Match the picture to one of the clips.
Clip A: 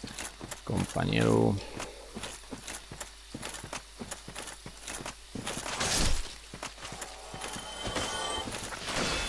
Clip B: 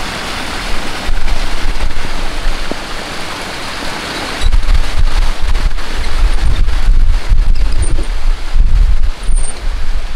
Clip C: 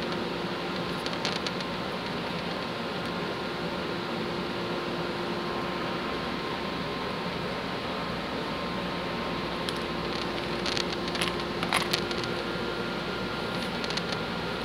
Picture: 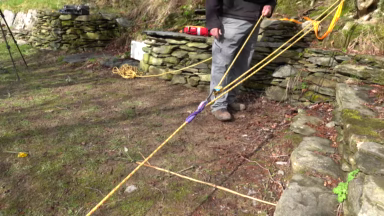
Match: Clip B